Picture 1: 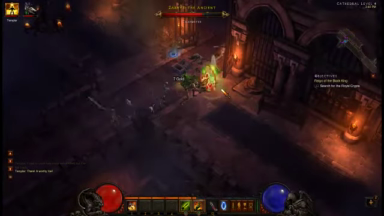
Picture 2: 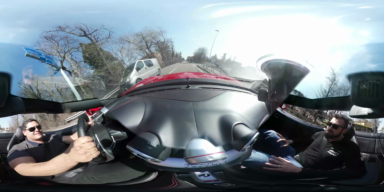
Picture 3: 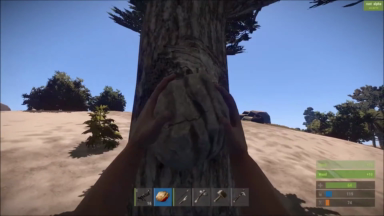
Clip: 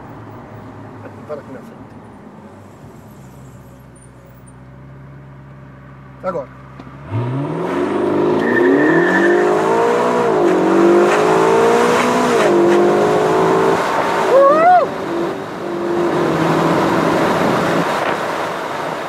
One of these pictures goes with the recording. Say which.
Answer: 2